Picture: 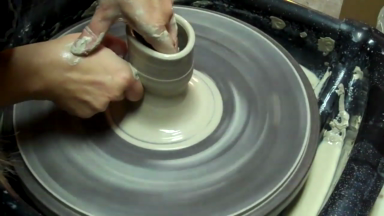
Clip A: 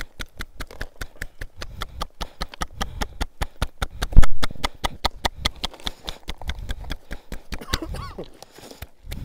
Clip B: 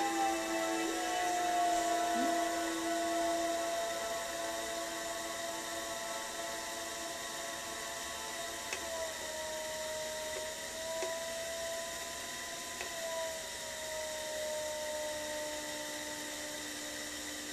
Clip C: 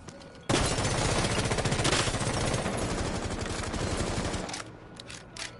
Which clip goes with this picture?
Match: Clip B